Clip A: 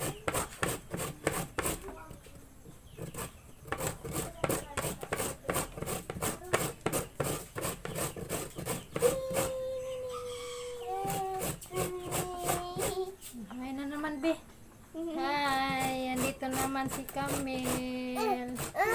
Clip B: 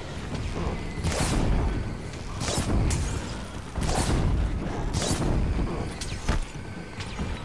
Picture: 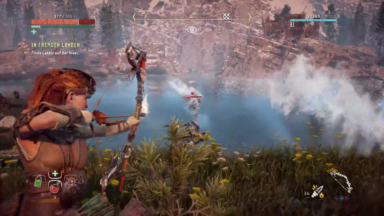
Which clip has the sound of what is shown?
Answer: B